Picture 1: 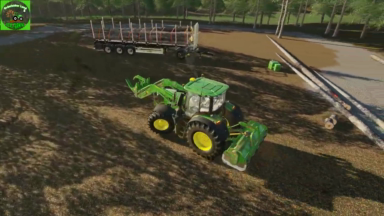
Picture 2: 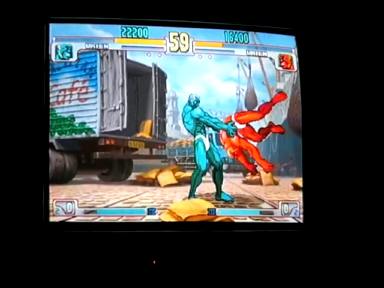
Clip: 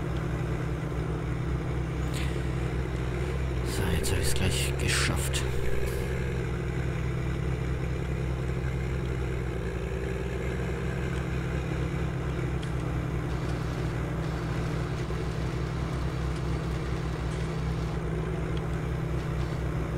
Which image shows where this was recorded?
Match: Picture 1